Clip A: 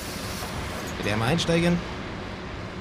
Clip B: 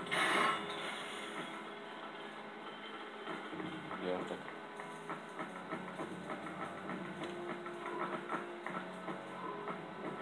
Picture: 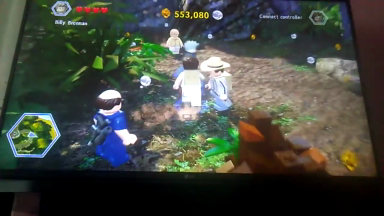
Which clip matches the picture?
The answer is B